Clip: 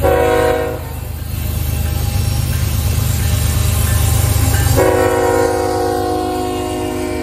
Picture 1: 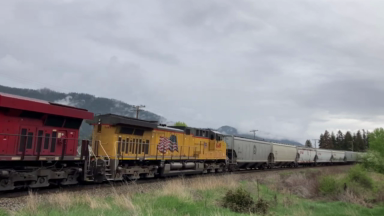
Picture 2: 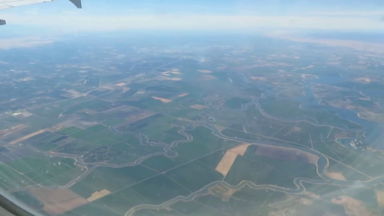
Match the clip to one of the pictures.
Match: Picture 1